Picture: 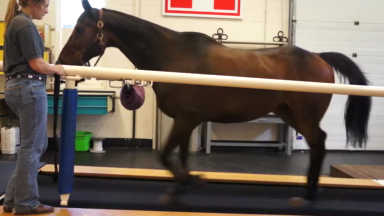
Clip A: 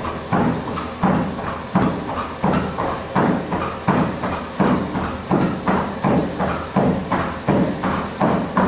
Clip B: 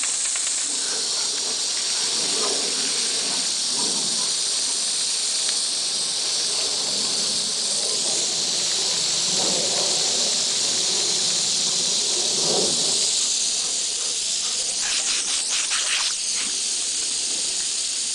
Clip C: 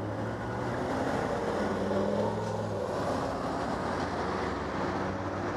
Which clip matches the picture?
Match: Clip A